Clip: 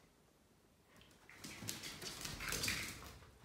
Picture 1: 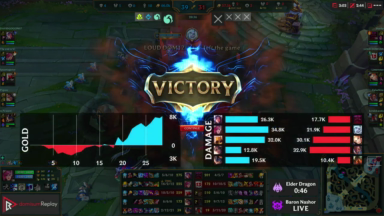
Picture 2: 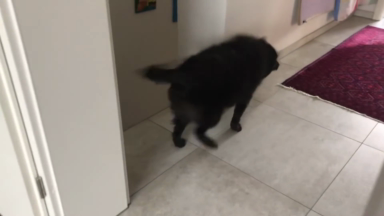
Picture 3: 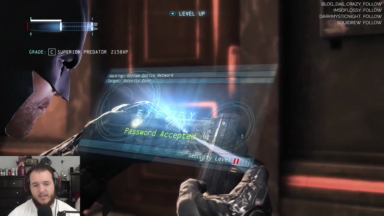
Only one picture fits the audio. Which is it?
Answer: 2